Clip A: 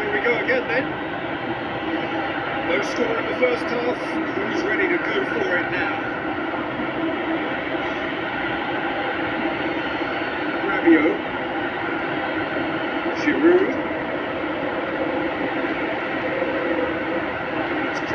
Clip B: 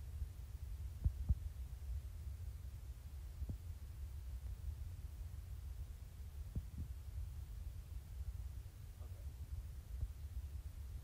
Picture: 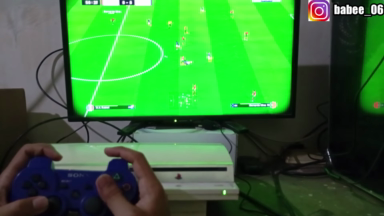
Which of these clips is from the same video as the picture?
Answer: A